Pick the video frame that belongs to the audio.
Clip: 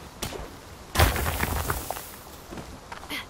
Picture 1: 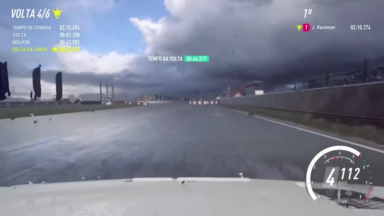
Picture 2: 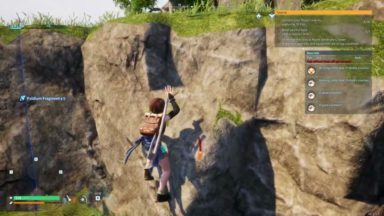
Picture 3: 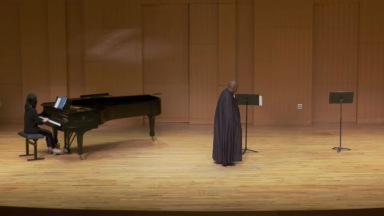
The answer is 2